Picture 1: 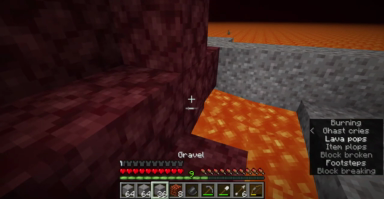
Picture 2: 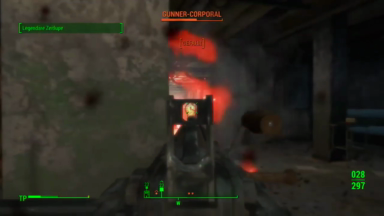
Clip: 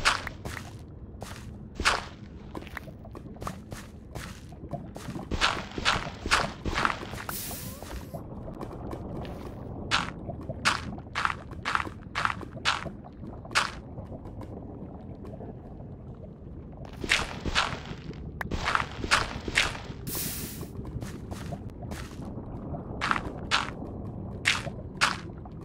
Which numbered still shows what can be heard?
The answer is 1